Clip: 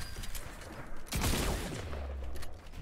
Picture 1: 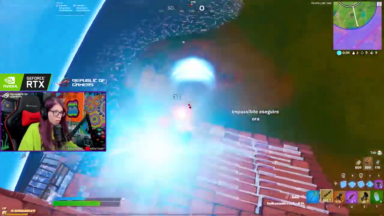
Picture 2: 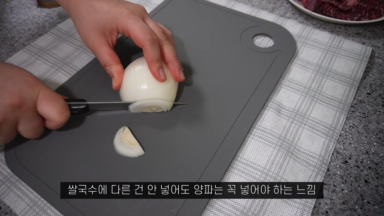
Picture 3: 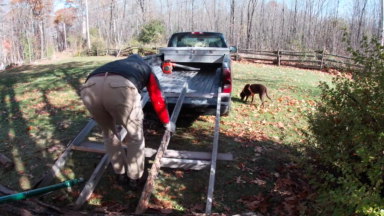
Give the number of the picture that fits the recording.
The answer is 1